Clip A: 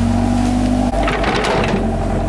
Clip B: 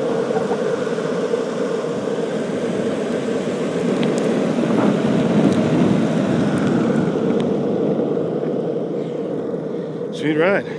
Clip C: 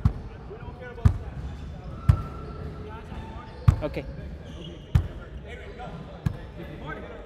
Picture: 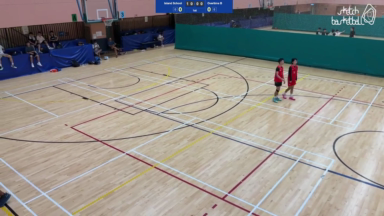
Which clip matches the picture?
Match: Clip C